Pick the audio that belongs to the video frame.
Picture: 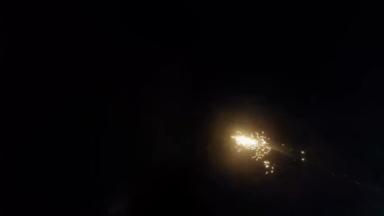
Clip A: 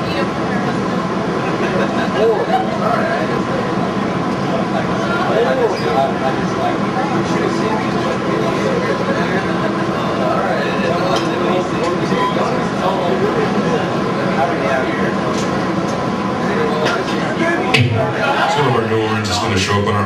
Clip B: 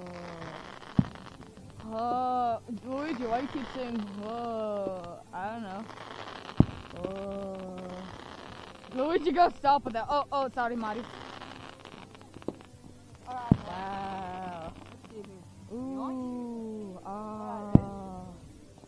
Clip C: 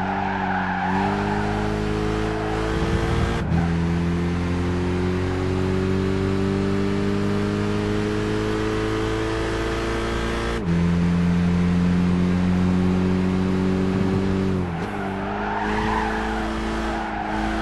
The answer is B